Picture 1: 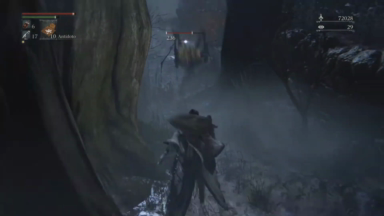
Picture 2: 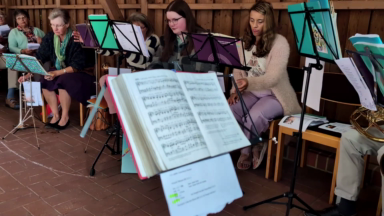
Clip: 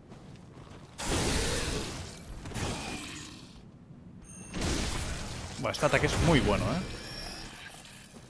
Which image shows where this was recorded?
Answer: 1